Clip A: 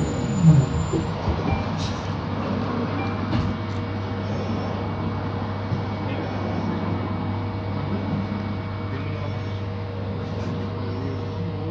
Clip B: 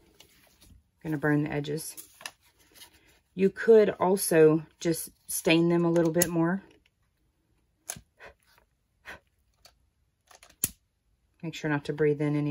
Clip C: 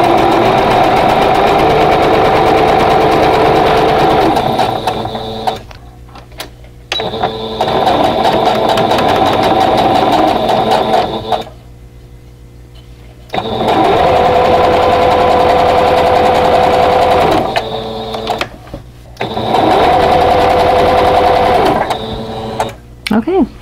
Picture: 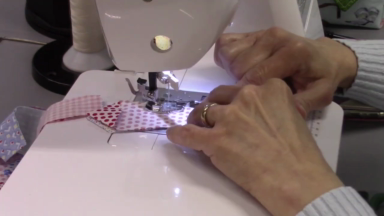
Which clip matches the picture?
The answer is C